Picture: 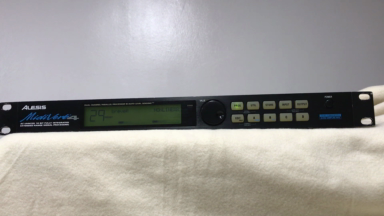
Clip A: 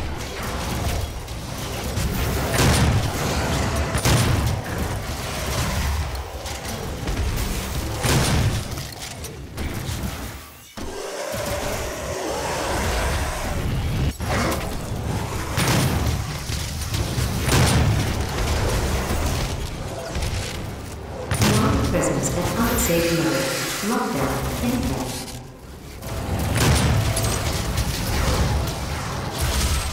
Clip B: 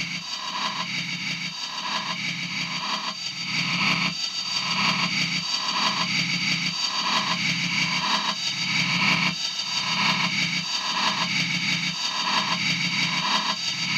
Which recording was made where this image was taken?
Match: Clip B